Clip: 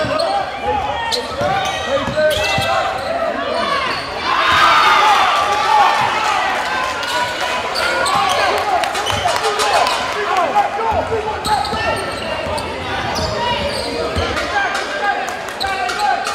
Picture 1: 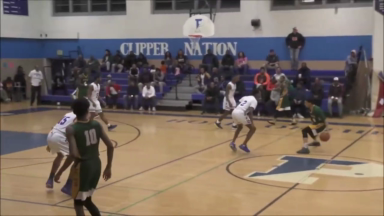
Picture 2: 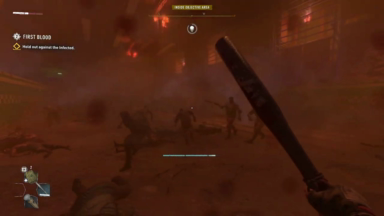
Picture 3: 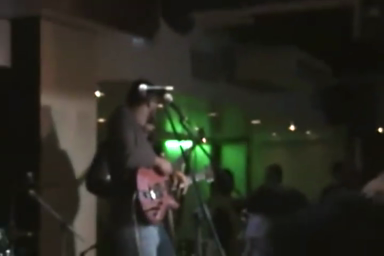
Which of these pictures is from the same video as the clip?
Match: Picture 1